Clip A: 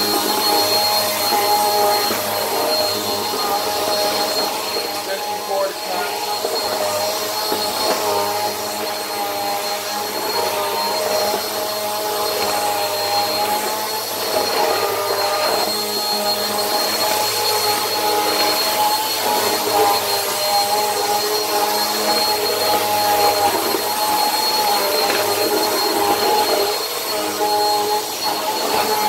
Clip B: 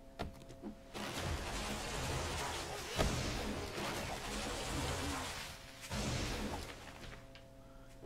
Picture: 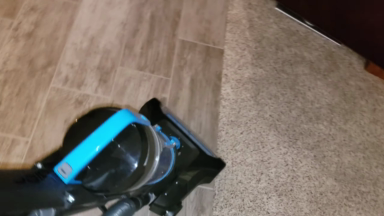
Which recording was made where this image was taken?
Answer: A